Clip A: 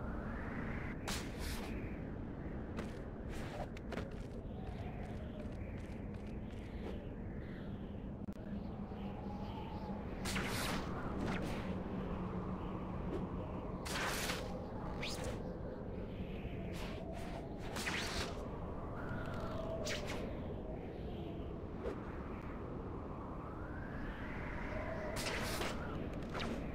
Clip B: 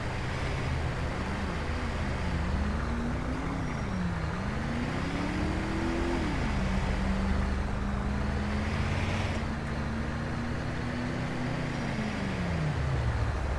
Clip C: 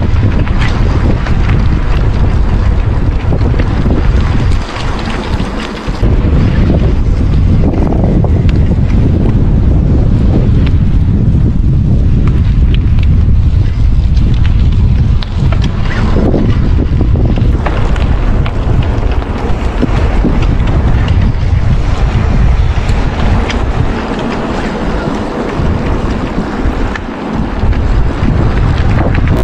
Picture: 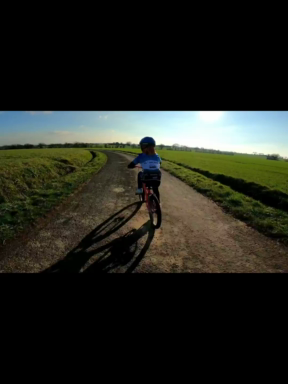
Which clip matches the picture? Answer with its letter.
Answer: C